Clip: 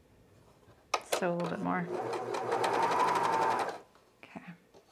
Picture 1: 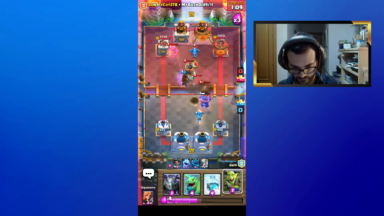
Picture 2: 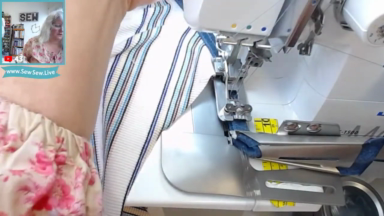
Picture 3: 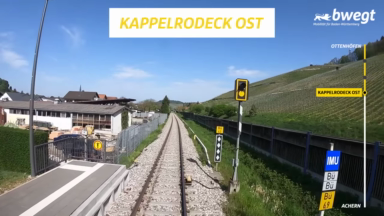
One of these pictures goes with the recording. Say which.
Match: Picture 2